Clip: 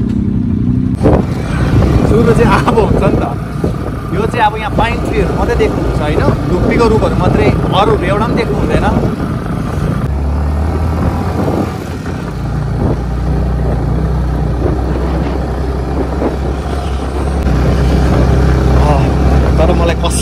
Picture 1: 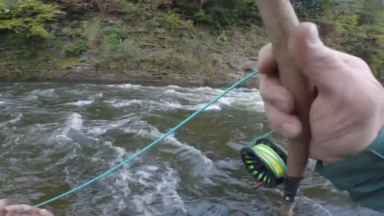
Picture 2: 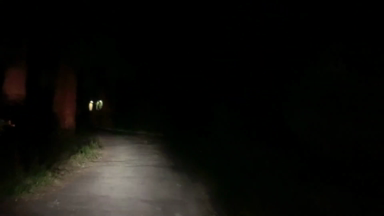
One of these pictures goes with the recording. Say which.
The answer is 2